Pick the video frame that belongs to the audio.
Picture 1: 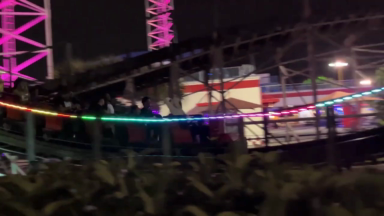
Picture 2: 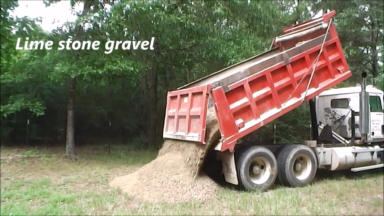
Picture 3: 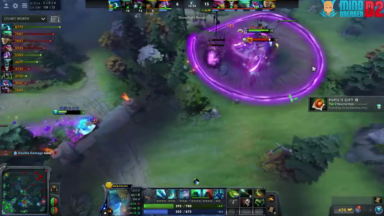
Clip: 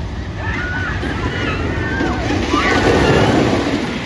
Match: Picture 1